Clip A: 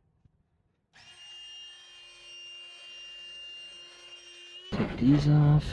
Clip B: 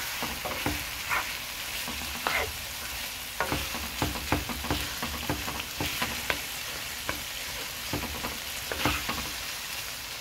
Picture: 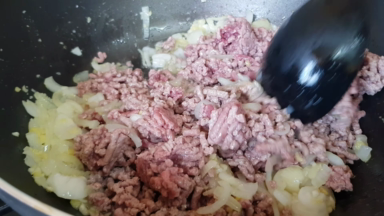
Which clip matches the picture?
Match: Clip B